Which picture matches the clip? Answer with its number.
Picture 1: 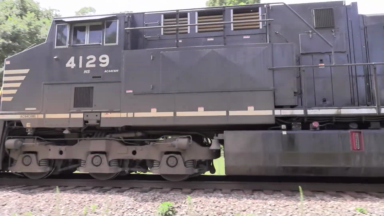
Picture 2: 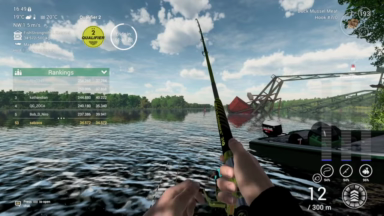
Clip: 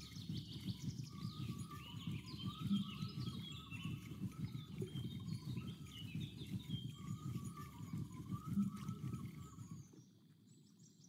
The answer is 2